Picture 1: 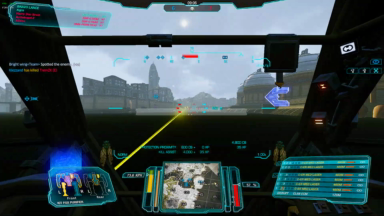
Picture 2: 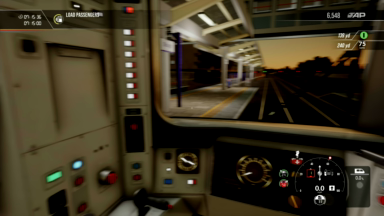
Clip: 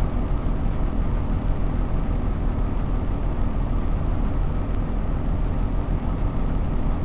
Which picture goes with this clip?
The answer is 2